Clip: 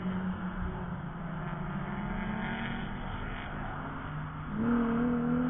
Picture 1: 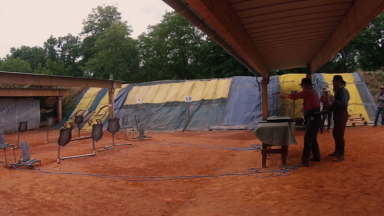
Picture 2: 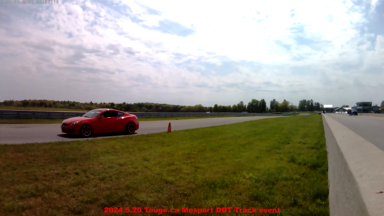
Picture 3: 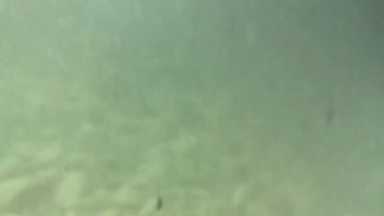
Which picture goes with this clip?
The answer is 2